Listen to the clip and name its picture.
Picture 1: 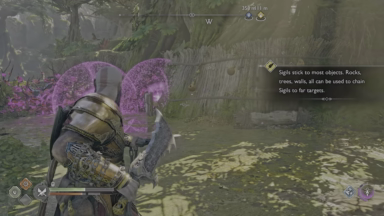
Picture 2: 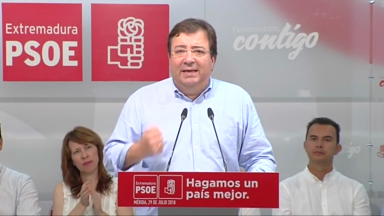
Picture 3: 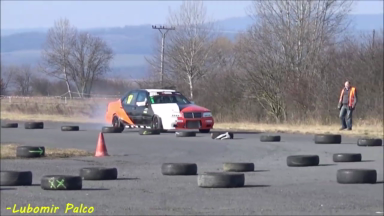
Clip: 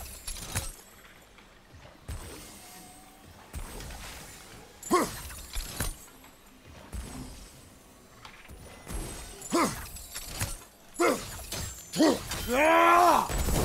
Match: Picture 1